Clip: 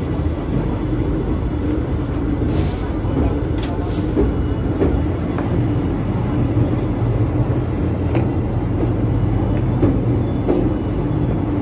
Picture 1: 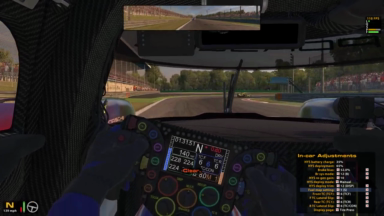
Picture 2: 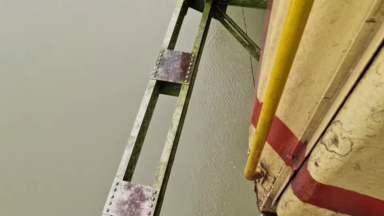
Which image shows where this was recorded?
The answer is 2